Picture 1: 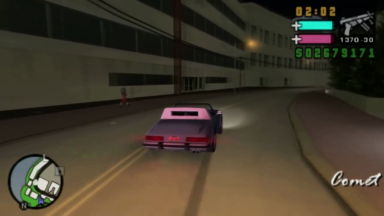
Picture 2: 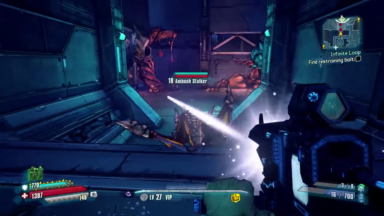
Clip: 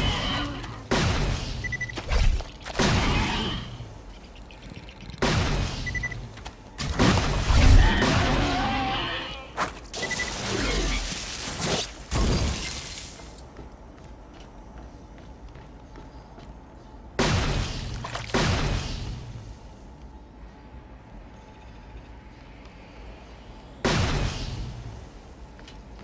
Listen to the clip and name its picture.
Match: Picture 2